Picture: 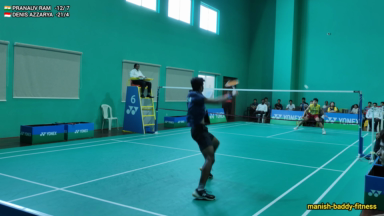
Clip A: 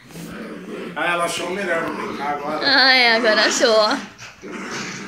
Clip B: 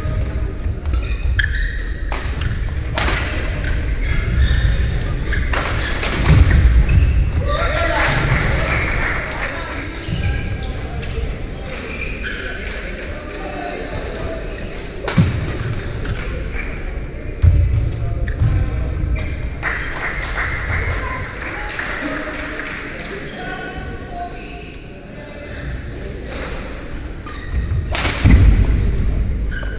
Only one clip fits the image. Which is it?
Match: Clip B